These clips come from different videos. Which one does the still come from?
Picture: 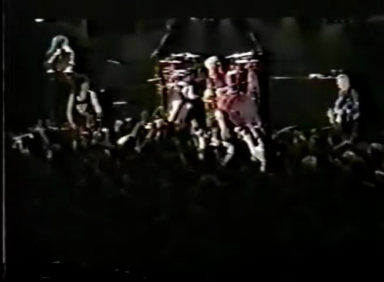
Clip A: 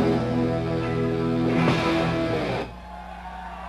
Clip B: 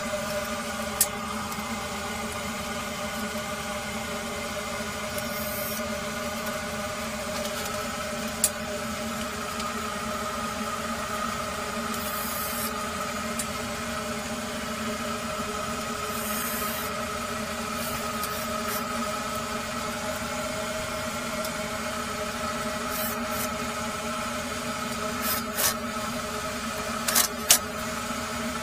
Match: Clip A